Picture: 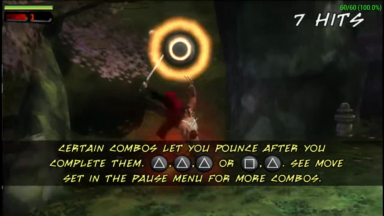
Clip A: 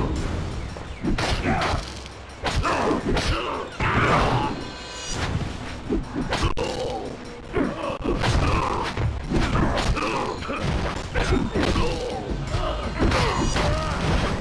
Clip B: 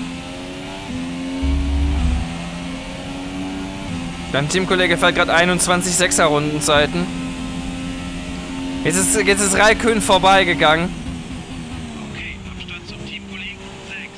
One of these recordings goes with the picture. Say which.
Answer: A